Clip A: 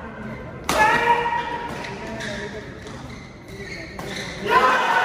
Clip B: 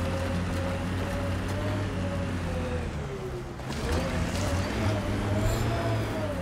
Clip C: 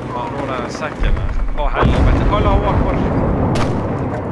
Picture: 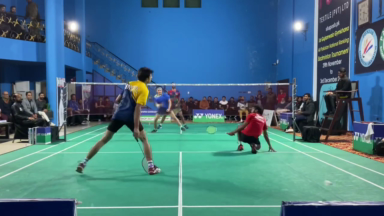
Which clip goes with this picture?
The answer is A